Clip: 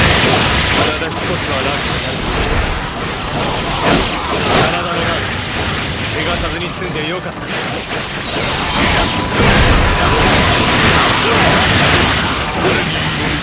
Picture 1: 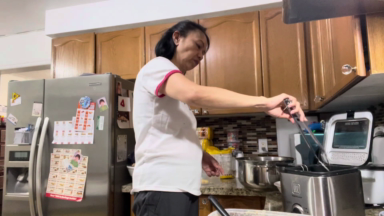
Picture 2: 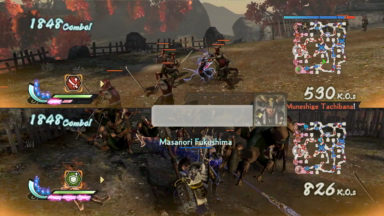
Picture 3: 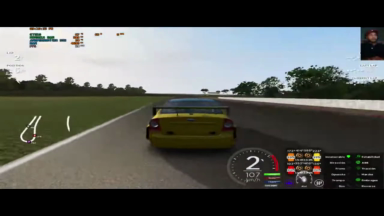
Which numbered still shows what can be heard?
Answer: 2